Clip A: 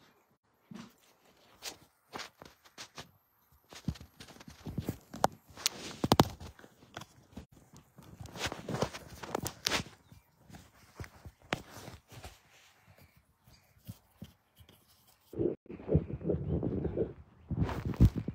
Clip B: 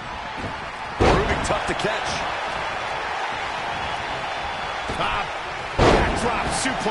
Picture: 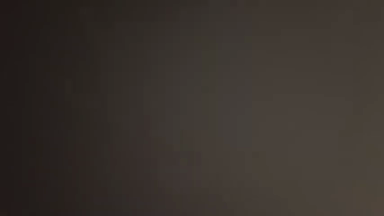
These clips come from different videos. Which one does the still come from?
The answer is A